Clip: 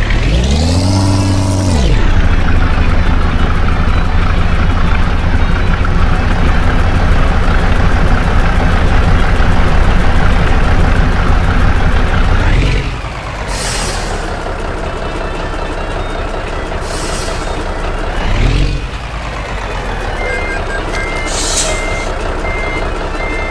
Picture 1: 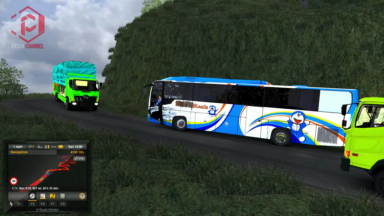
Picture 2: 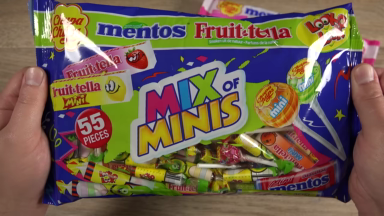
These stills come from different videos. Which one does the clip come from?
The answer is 1